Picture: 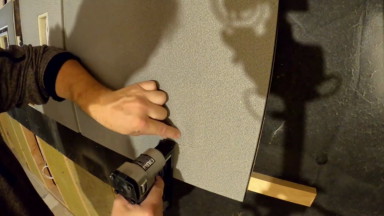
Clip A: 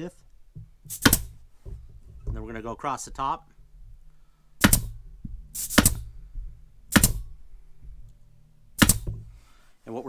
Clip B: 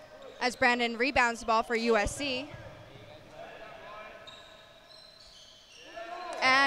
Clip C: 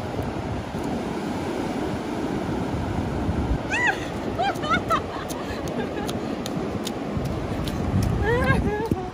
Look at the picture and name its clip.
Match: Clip A